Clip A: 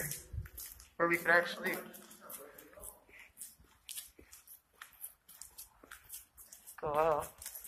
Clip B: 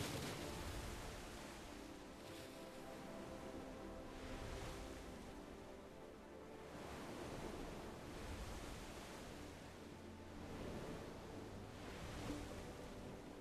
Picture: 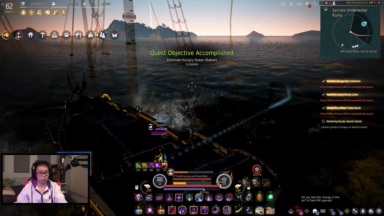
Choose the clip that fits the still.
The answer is B